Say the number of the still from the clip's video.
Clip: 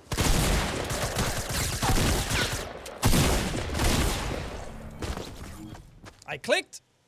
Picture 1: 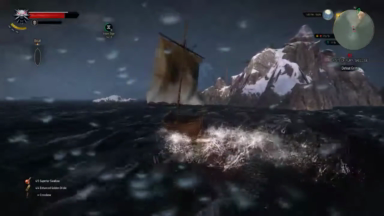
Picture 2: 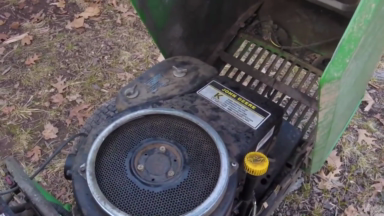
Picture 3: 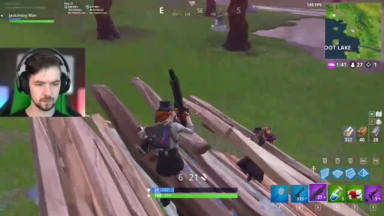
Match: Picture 3